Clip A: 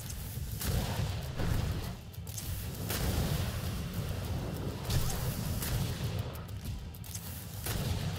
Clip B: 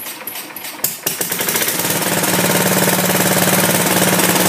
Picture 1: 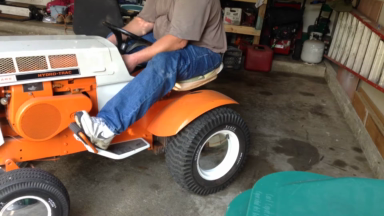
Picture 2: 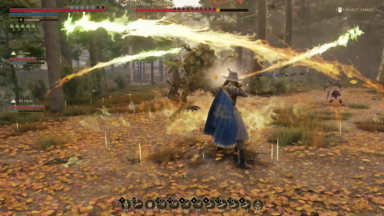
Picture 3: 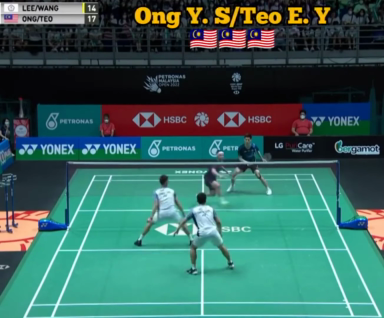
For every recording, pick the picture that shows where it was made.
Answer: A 2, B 1